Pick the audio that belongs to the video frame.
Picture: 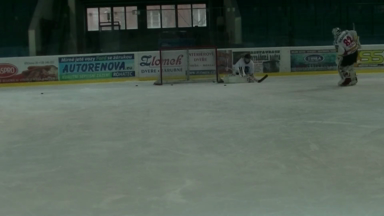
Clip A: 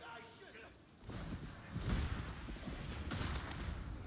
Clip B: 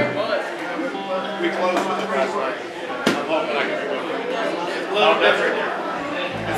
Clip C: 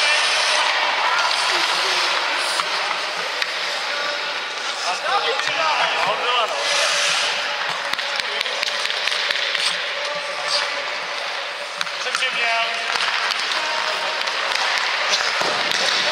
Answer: C